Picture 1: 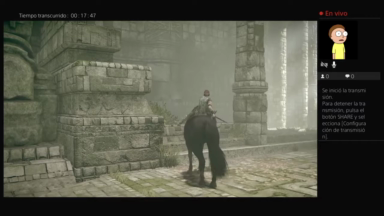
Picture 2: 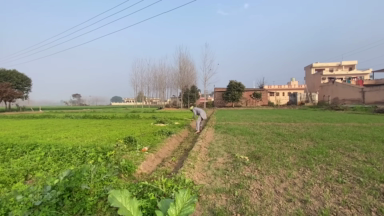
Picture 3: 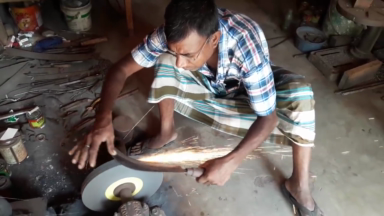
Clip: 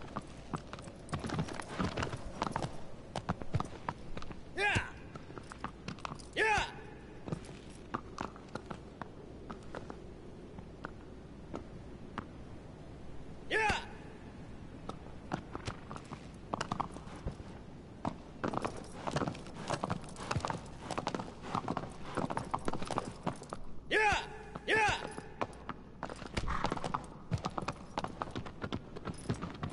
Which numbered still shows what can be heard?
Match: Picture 1